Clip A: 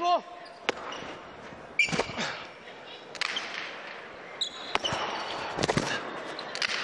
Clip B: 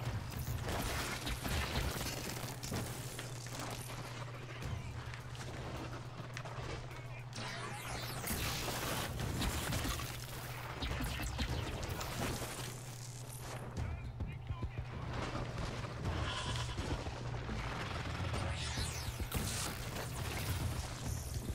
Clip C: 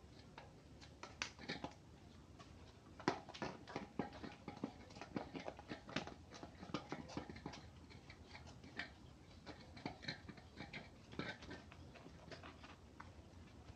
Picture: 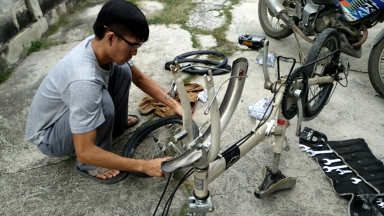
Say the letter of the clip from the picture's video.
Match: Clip C